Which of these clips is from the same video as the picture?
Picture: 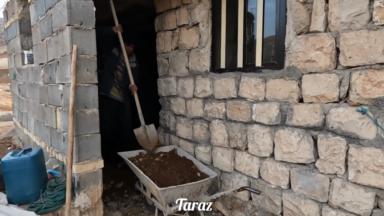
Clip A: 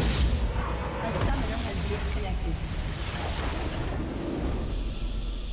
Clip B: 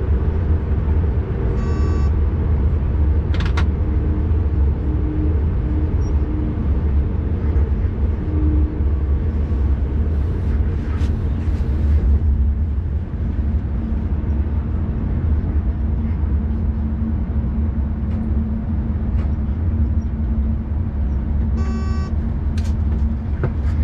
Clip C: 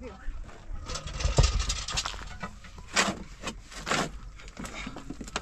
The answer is C